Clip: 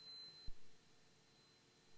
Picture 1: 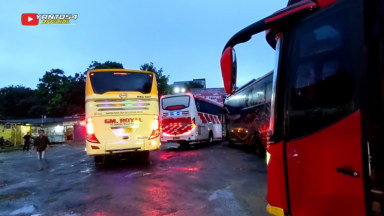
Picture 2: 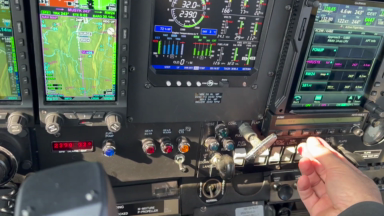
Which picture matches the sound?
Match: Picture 2